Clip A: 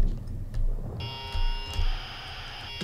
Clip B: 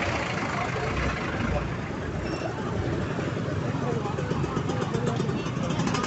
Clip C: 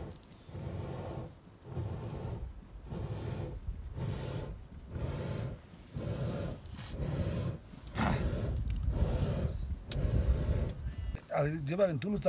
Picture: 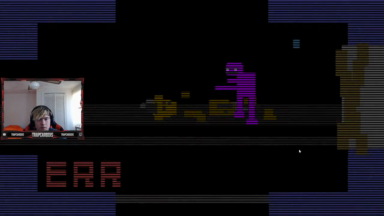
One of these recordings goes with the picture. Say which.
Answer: A